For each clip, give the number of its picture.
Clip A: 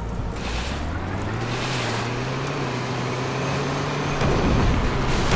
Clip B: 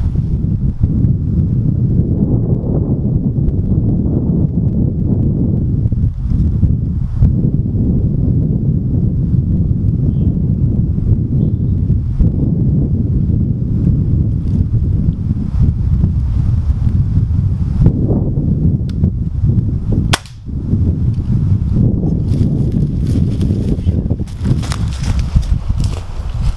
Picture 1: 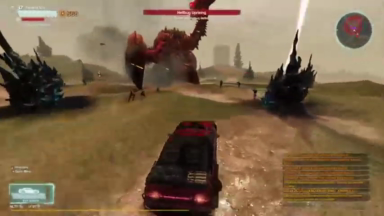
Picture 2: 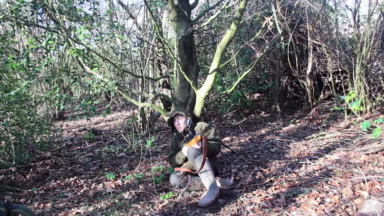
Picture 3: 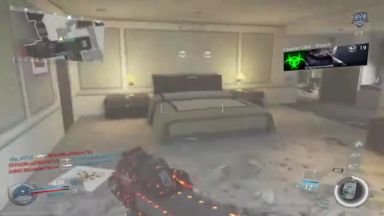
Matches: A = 1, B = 2